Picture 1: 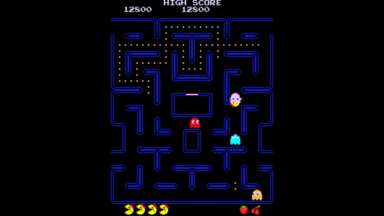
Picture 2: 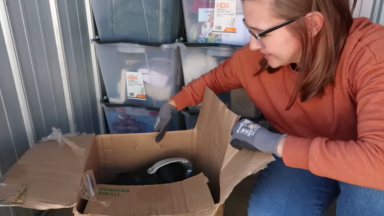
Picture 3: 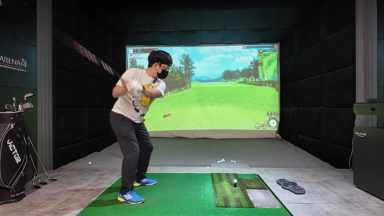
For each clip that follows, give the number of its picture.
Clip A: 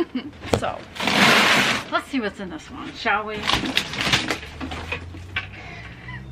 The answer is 2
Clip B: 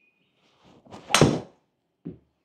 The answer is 3